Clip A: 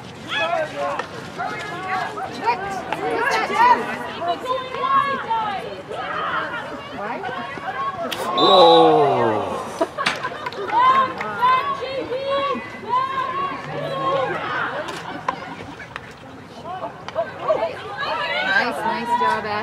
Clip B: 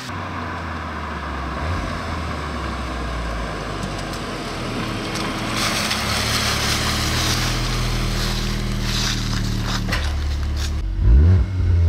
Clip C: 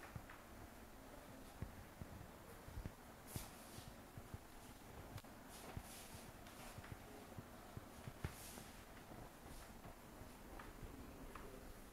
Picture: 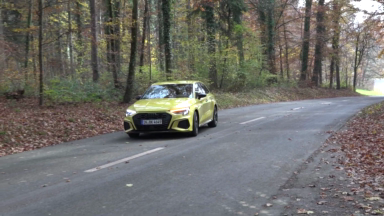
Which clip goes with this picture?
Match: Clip B